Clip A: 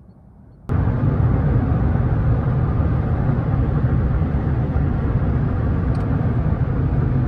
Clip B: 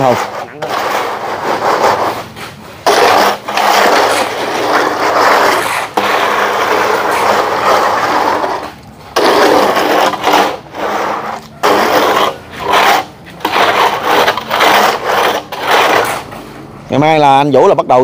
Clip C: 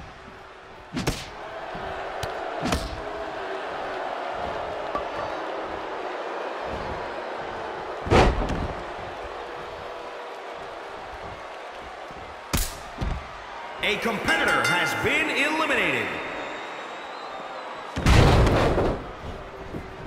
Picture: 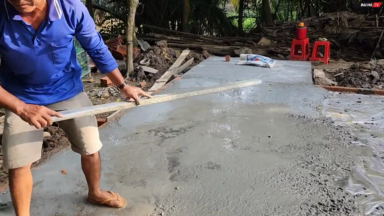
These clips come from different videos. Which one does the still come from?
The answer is B